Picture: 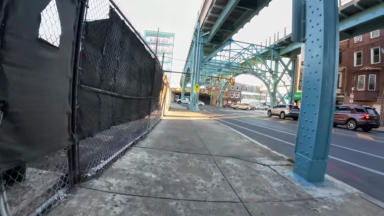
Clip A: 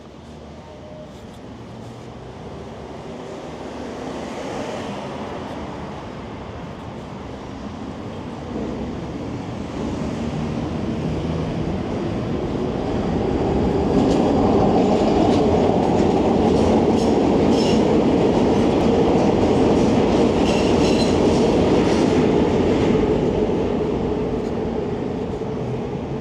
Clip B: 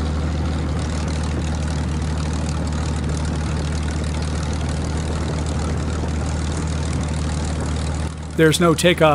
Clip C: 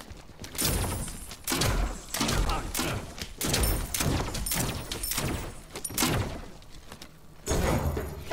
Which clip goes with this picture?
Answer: A